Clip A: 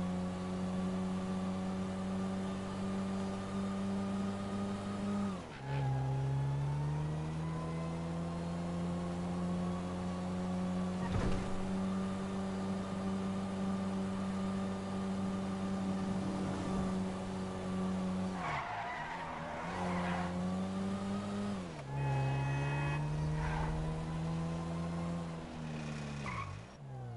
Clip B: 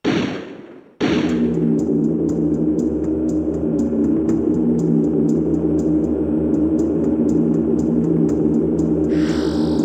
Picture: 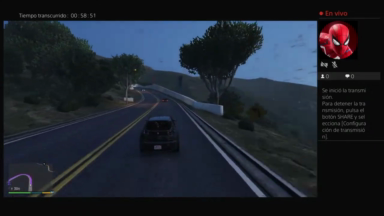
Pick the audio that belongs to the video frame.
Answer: A